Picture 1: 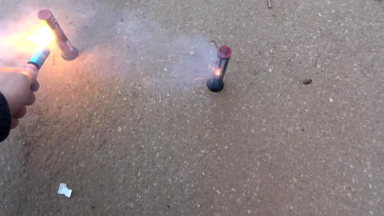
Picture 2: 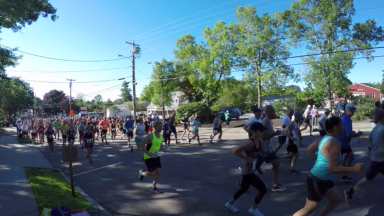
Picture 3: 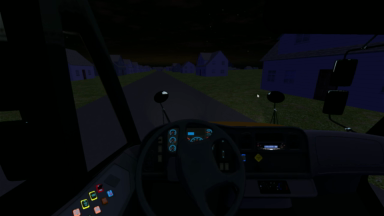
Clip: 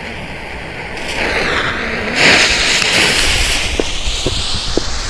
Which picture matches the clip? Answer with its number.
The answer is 1